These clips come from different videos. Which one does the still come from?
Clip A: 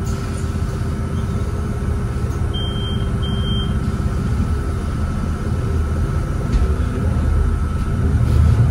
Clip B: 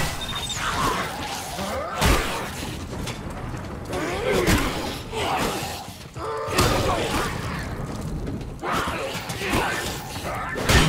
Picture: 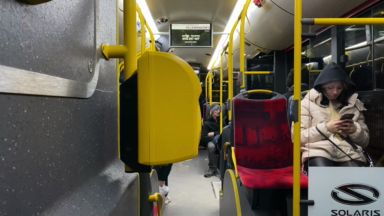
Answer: A